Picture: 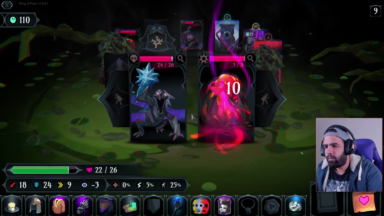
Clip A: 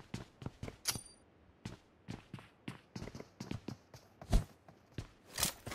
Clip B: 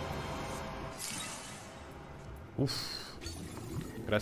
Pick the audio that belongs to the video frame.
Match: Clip B